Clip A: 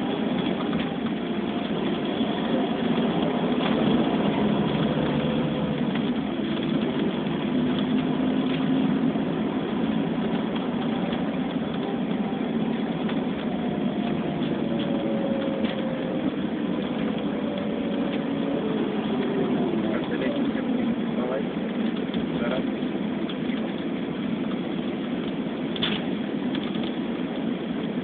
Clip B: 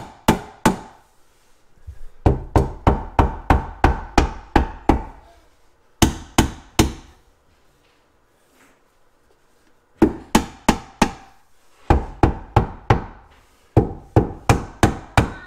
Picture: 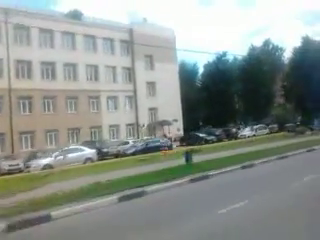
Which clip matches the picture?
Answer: A